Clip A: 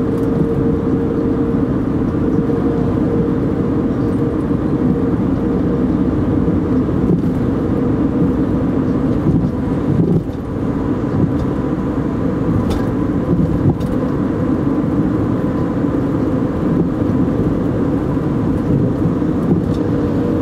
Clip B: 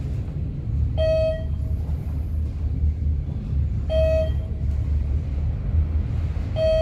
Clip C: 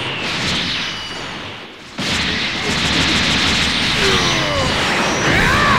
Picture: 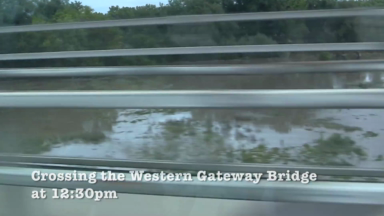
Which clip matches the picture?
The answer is A